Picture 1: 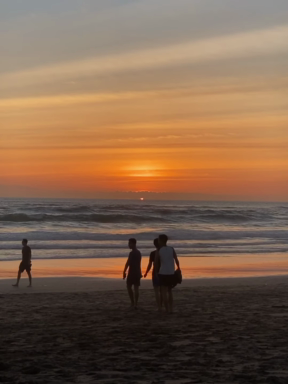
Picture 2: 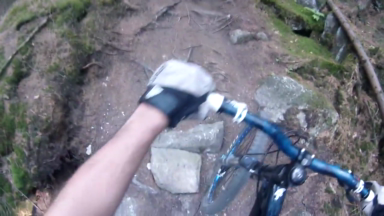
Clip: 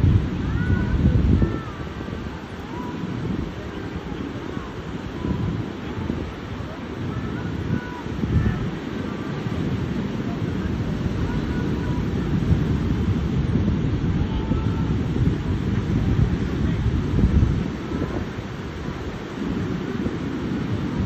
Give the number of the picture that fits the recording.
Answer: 1